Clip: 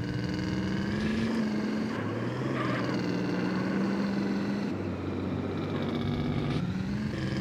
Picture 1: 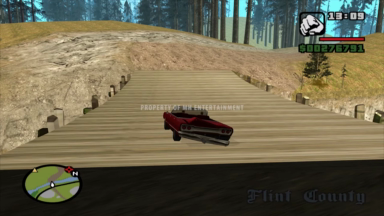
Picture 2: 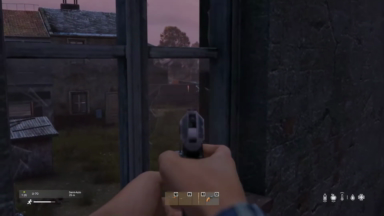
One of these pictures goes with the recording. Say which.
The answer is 1